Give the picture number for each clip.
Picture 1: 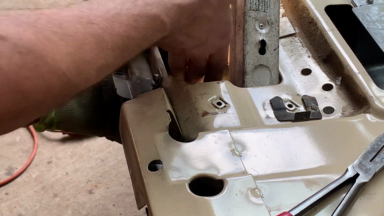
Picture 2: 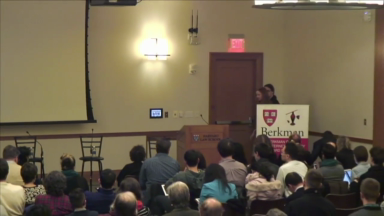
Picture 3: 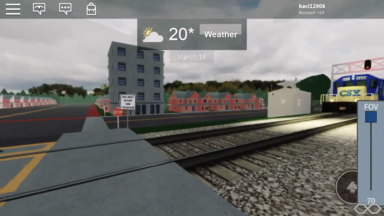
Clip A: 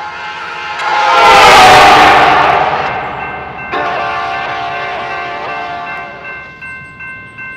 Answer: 3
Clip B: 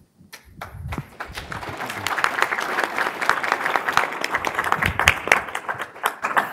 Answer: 2